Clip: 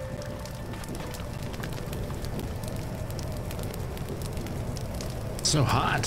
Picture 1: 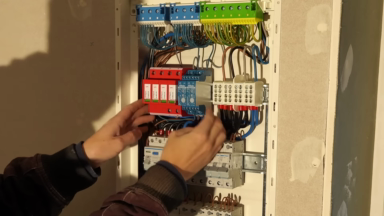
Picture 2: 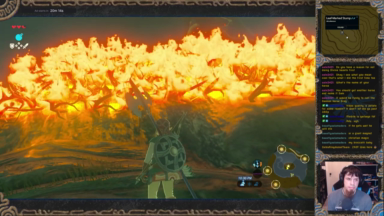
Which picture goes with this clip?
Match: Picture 2